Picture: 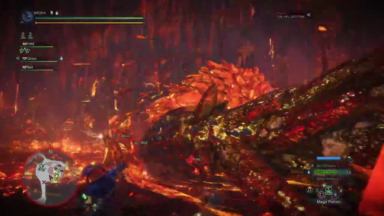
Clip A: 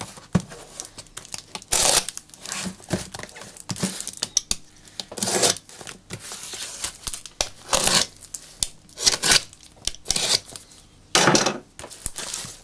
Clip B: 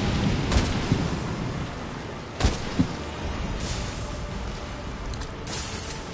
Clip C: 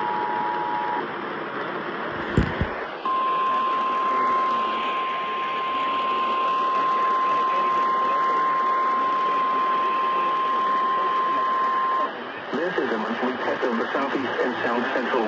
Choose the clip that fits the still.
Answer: B